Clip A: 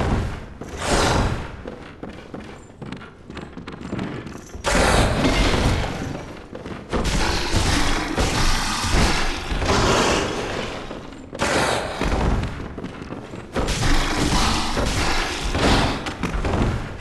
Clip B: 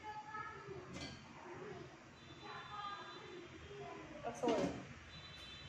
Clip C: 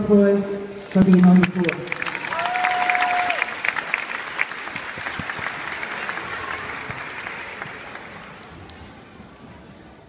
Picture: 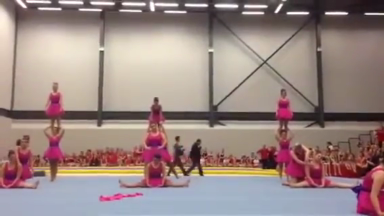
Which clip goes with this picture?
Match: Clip C